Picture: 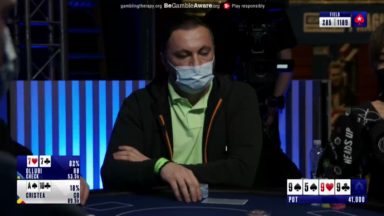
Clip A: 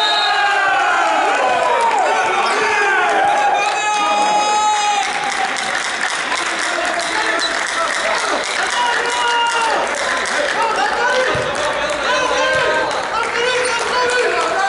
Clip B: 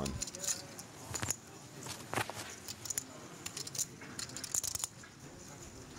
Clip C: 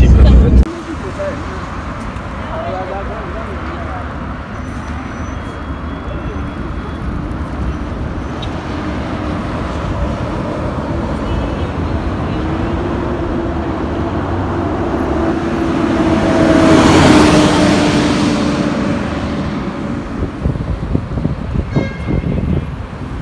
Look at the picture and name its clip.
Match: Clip B